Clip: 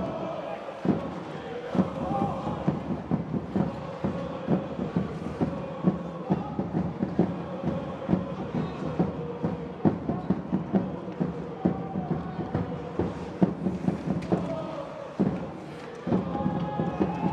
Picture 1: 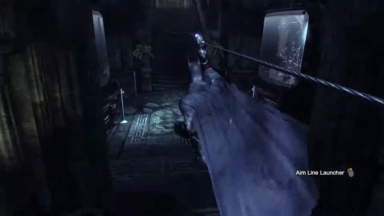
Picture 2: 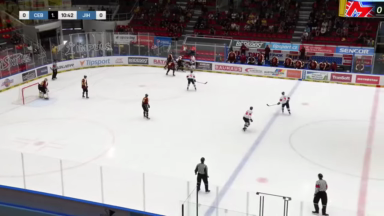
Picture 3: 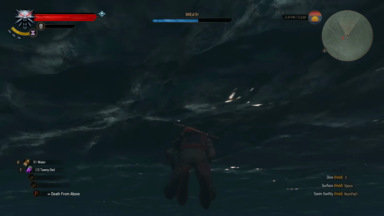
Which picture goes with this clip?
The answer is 2